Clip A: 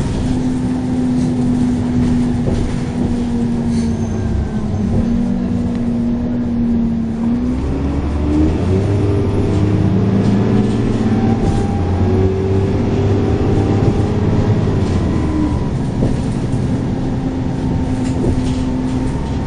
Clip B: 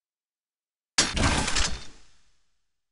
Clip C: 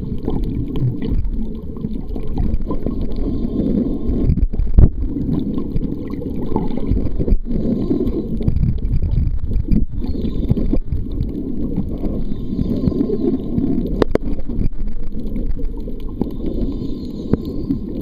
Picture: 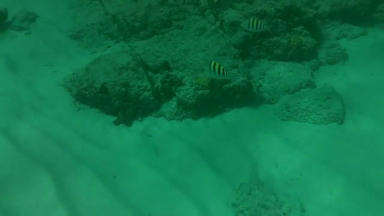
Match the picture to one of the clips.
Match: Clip C